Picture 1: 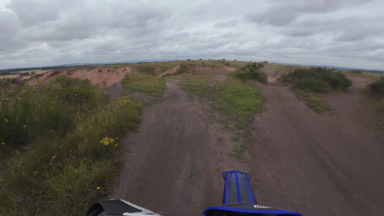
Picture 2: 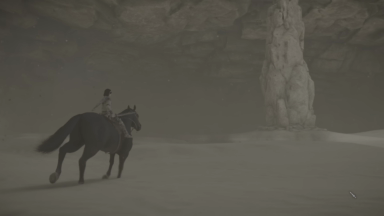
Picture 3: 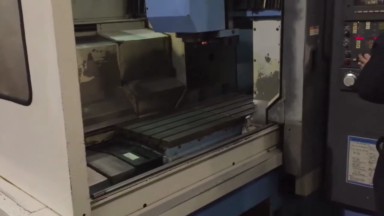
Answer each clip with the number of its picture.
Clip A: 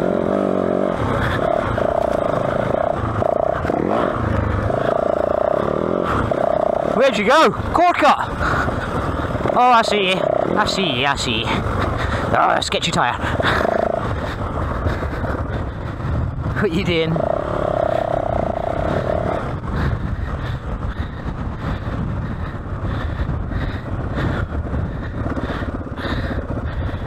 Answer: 1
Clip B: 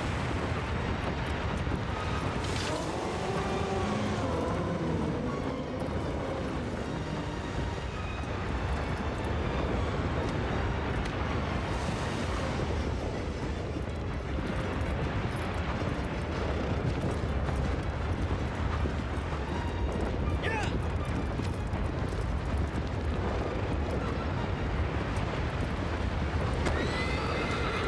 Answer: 2